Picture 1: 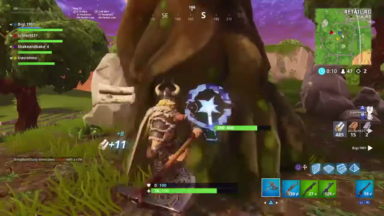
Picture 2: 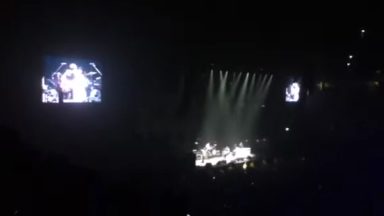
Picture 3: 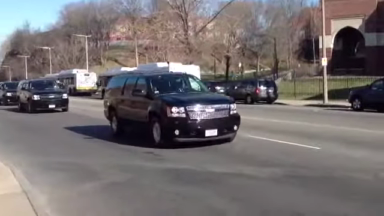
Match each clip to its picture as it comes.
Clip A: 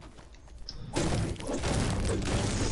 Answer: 1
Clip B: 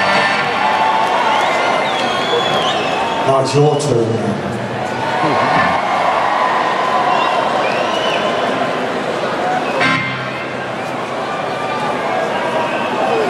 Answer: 2